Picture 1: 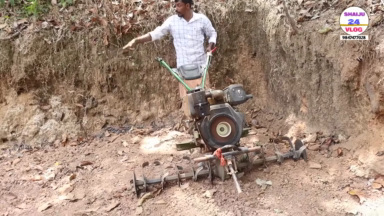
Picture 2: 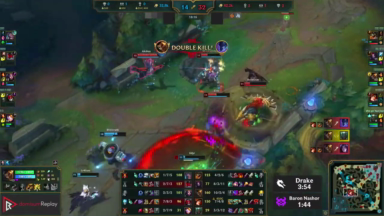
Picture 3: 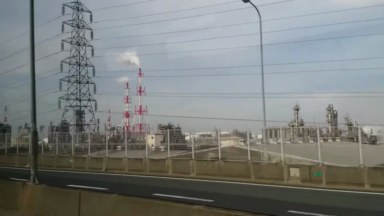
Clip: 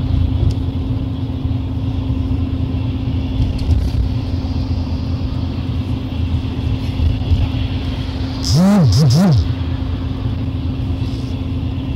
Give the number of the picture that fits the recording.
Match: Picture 3